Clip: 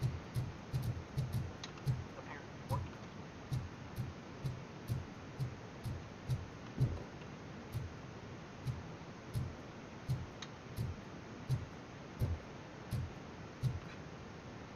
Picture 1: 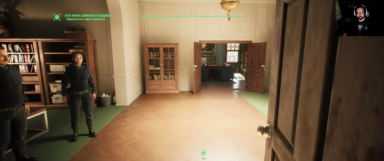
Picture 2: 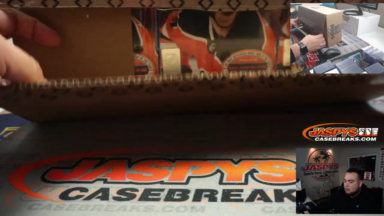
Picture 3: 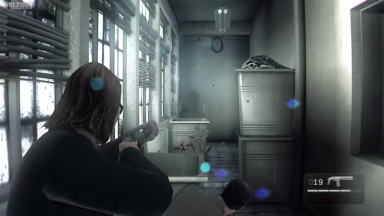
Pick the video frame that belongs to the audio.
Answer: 1